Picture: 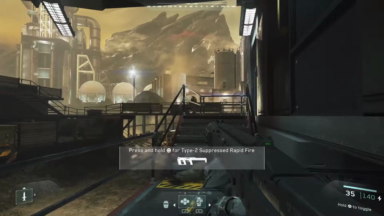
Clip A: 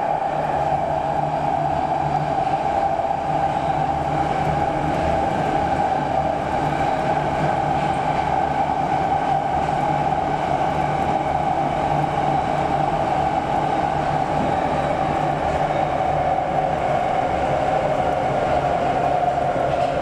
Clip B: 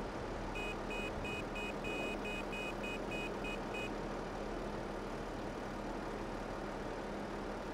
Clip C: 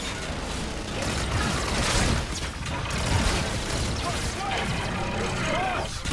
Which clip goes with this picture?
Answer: C